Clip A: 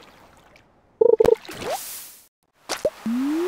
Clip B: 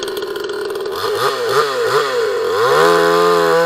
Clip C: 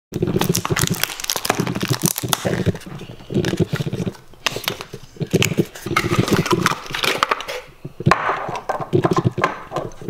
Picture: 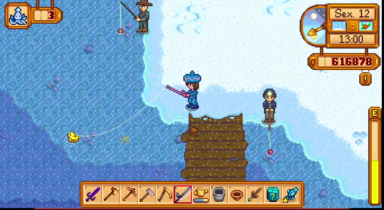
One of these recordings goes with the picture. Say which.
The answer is A